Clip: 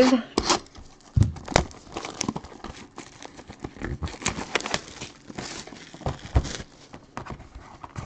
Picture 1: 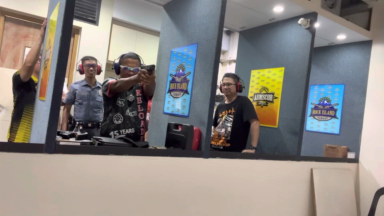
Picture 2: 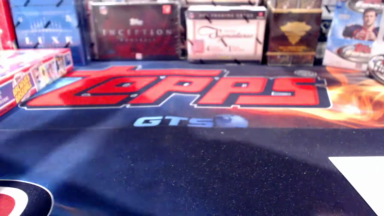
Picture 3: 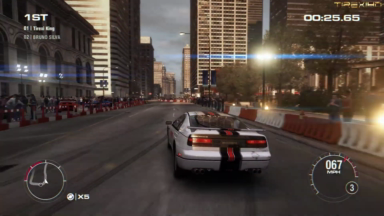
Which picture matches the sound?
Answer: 2